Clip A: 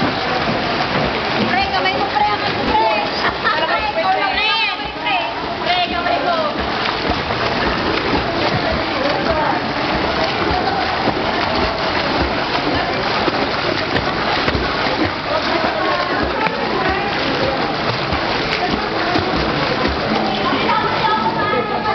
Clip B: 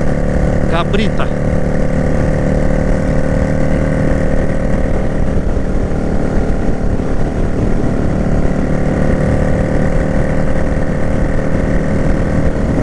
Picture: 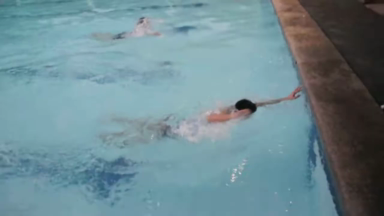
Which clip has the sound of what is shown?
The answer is A